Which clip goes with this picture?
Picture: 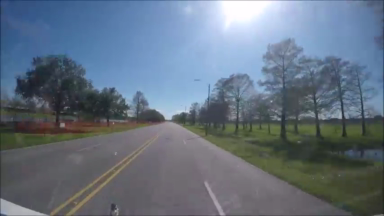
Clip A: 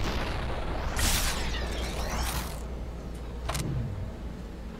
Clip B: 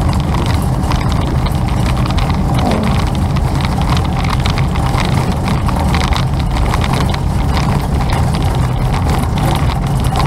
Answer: B